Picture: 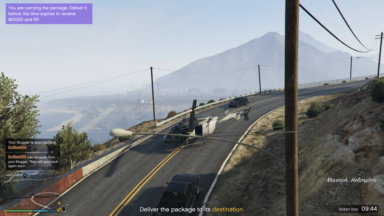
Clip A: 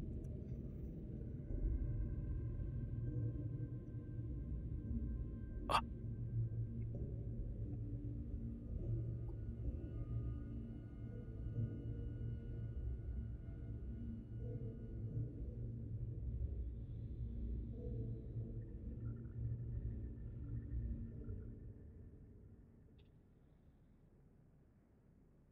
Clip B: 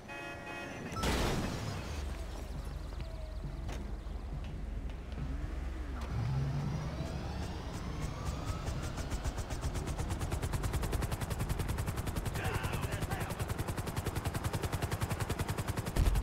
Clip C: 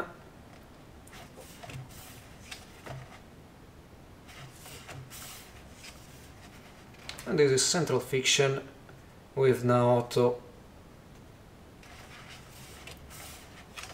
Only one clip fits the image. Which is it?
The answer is B